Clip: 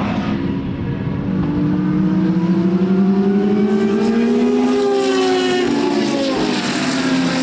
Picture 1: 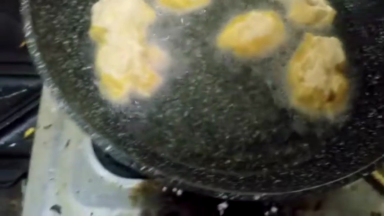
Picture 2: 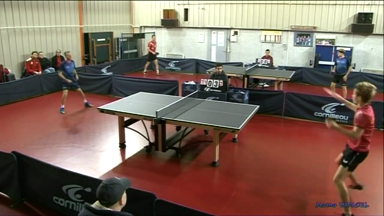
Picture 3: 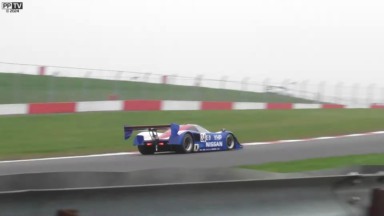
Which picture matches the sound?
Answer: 3